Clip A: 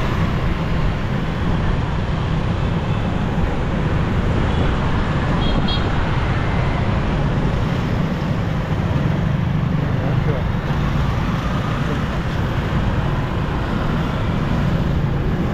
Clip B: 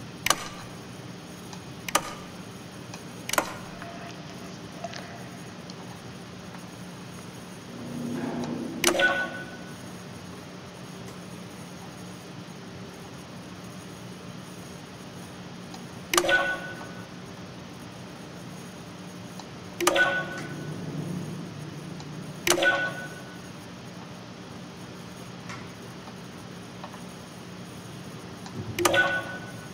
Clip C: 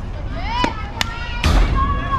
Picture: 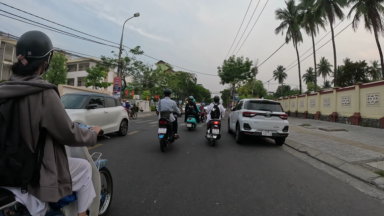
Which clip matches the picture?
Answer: A